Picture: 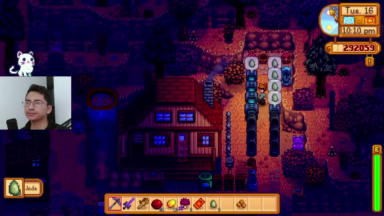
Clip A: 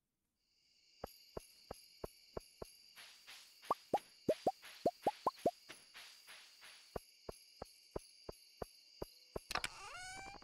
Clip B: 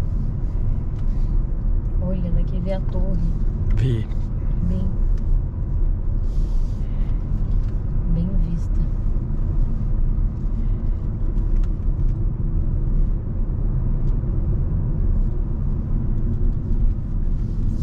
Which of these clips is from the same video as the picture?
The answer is A